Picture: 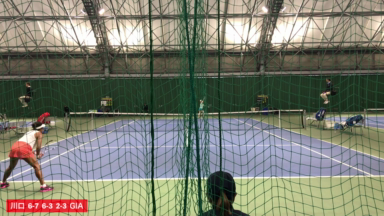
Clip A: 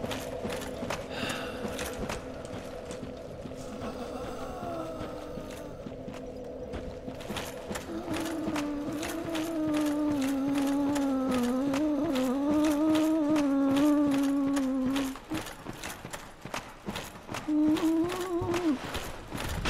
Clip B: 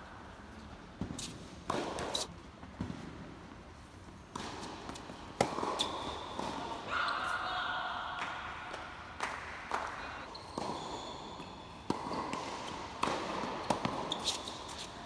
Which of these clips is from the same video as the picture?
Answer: B